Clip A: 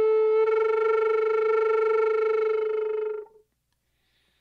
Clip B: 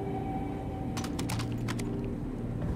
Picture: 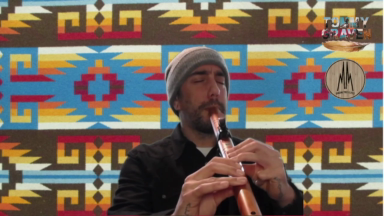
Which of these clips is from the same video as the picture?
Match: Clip A